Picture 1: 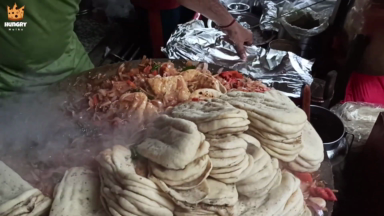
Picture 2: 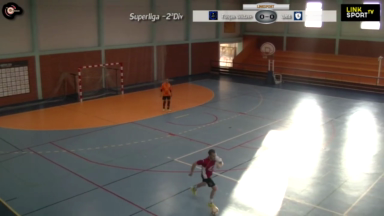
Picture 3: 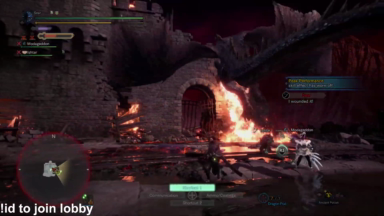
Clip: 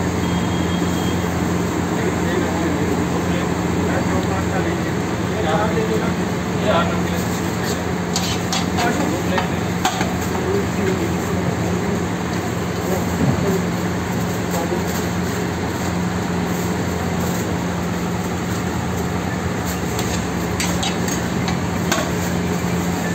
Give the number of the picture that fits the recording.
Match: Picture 1